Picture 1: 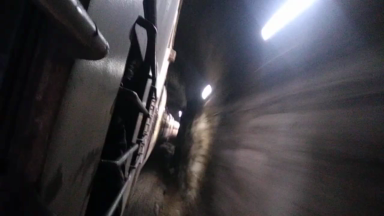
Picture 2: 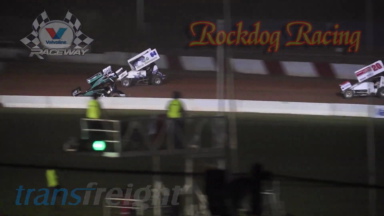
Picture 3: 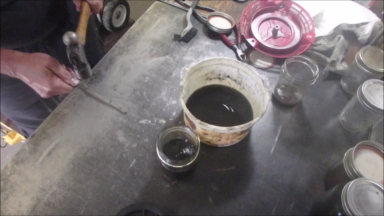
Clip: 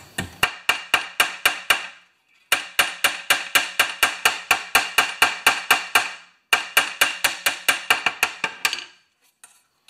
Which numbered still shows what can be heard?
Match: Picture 3